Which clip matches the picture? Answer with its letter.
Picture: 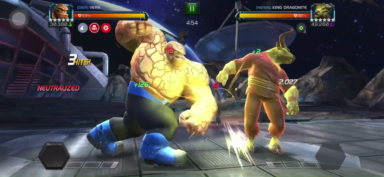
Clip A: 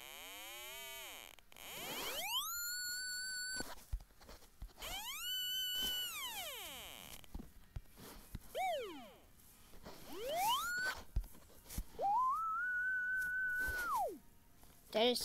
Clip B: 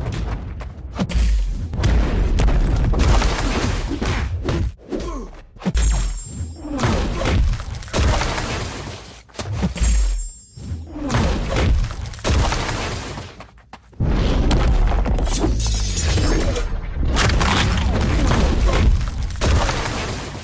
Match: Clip B